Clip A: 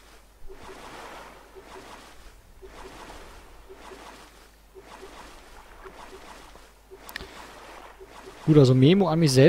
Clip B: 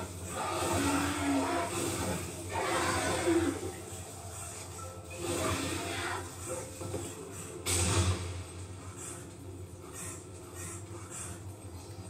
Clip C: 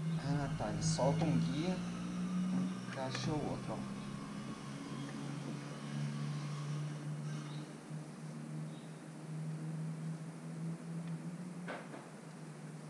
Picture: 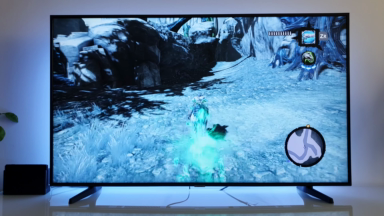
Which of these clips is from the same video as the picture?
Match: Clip B